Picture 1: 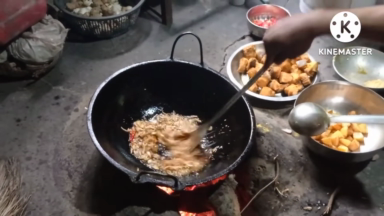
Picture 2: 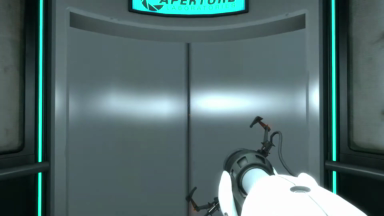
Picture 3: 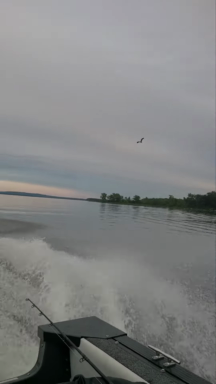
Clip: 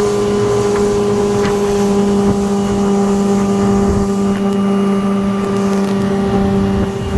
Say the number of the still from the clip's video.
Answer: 3